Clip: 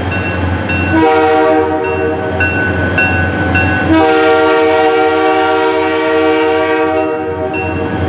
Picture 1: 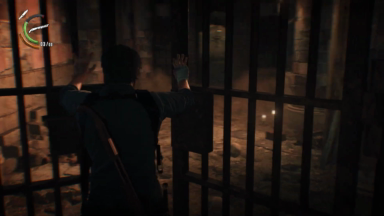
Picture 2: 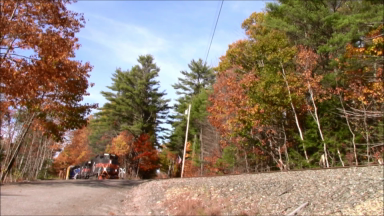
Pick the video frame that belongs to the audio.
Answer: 2